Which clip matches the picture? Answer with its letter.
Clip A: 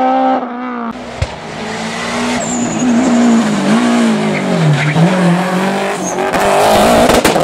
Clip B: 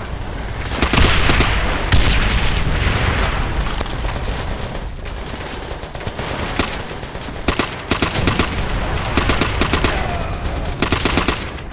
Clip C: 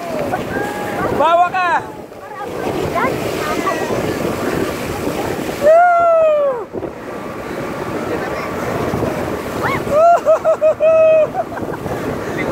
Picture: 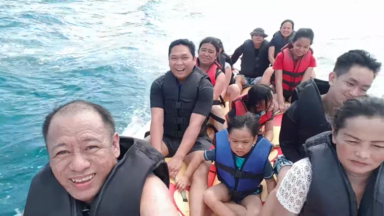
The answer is C